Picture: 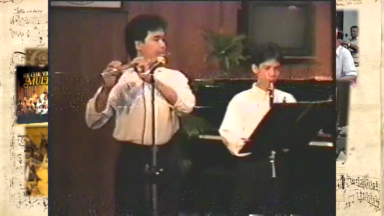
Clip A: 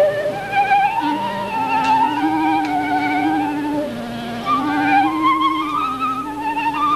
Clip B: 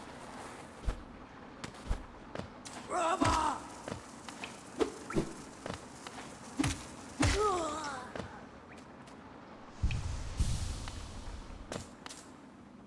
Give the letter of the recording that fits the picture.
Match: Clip A